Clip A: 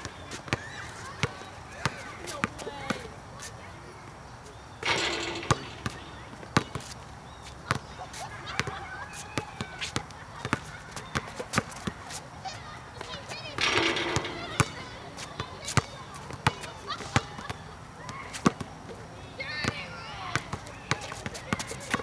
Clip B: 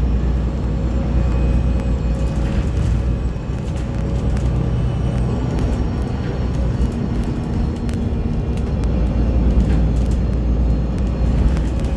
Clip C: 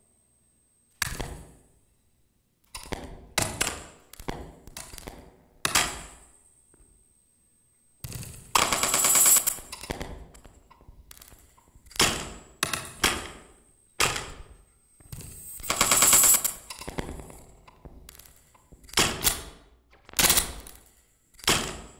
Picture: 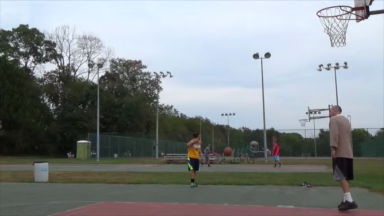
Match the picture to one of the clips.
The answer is A